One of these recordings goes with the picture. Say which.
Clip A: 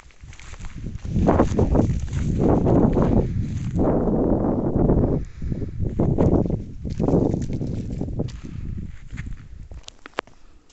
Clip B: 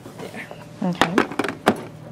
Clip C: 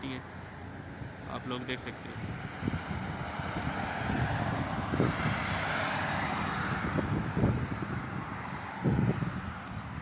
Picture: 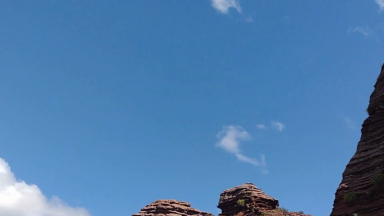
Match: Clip A